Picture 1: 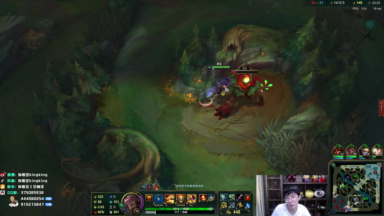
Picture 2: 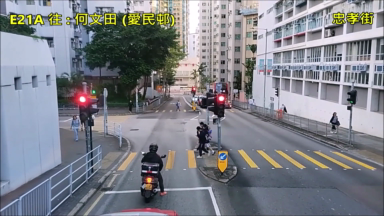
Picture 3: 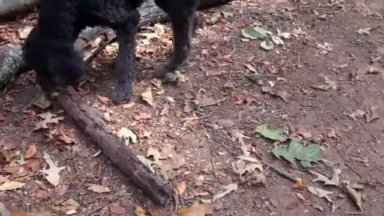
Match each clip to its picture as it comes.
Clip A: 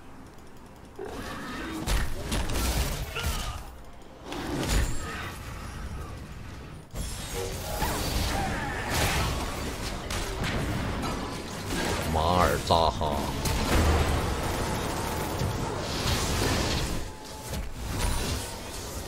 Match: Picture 1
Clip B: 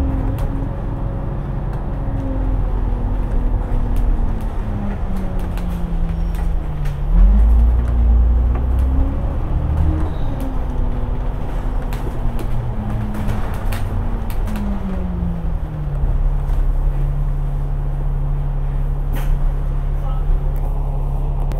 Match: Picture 2